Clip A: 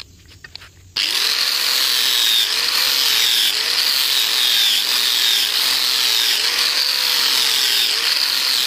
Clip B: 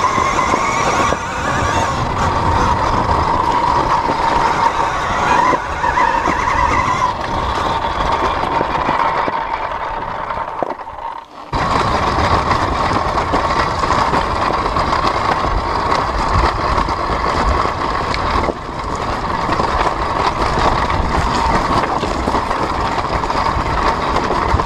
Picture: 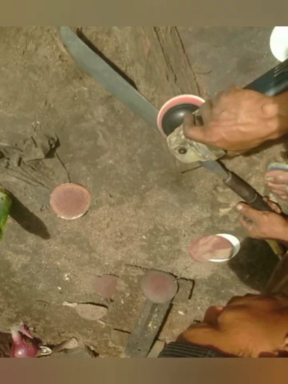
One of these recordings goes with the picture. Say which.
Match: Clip A